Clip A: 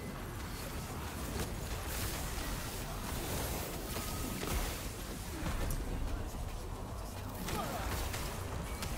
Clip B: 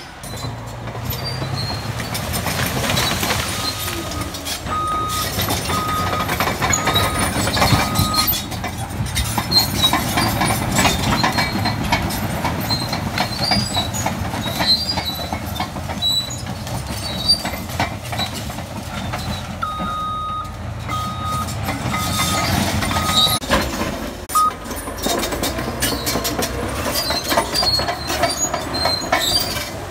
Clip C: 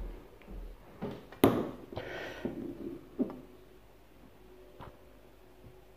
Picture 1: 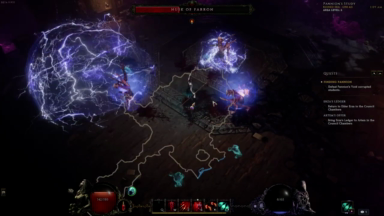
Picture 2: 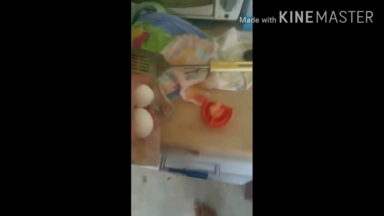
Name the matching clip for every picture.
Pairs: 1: A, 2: C